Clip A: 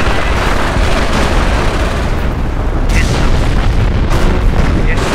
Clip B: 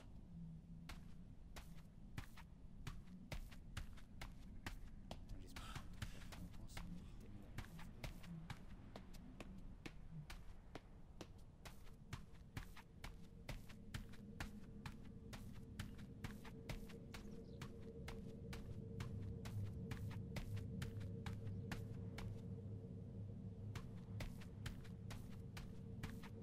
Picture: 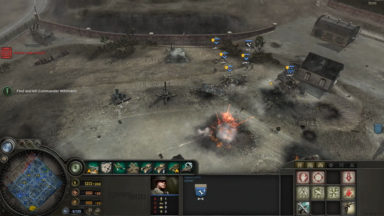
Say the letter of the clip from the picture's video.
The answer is A